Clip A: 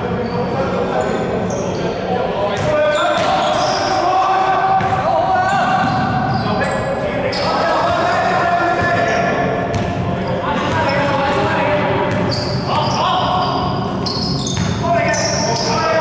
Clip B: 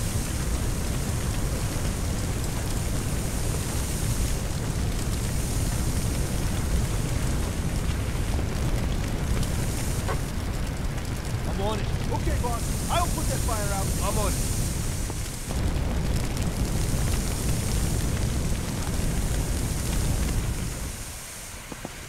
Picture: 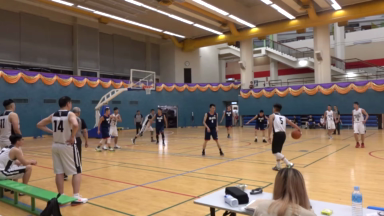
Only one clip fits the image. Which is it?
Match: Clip A